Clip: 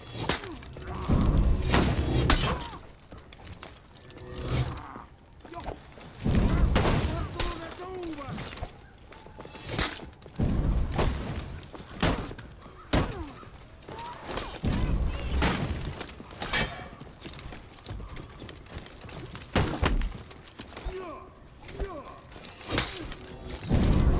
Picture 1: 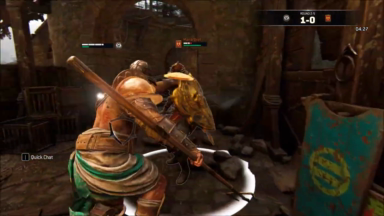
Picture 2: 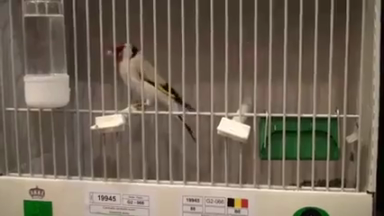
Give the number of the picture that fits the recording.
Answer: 1